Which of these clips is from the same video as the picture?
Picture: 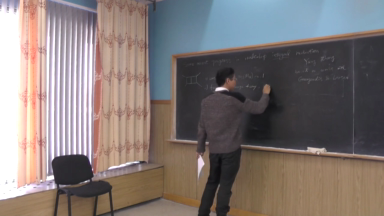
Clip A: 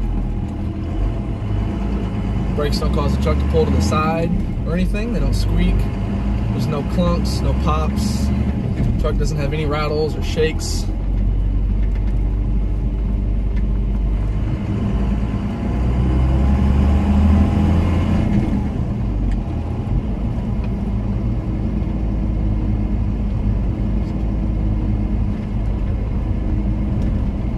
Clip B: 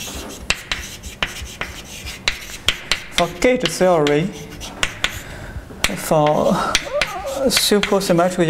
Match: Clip B